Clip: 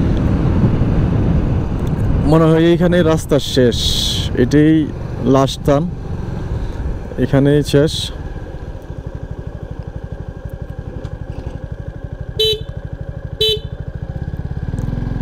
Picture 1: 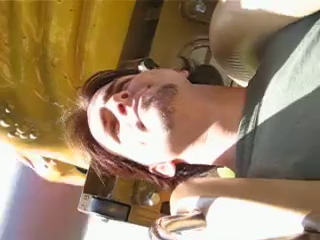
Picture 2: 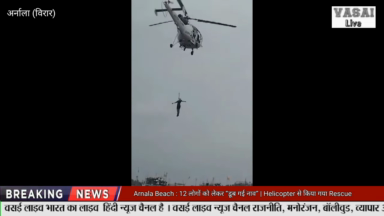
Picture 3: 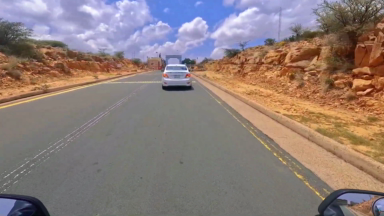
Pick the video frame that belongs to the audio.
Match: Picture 3